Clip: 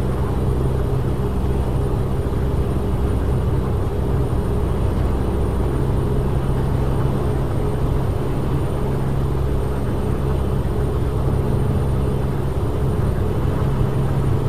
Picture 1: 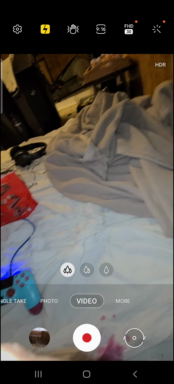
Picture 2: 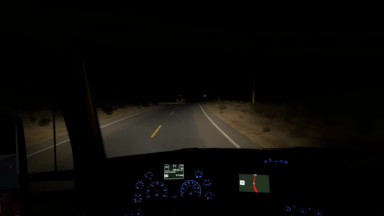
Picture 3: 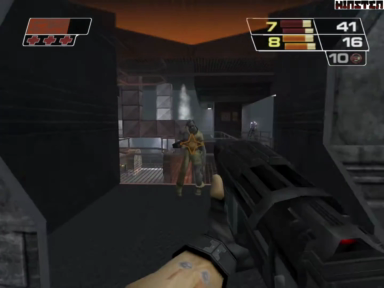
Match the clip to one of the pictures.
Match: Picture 2